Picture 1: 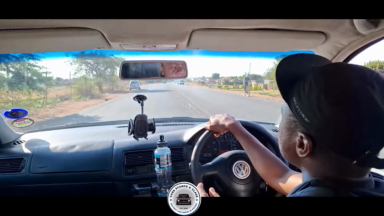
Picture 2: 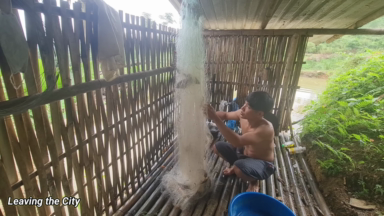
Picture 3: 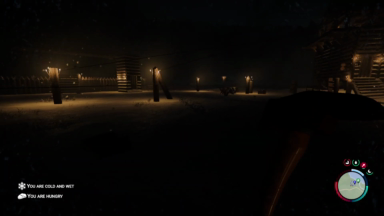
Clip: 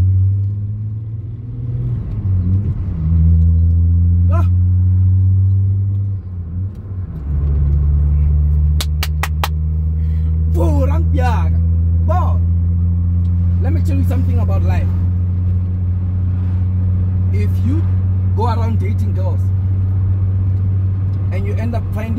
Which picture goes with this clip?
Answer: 1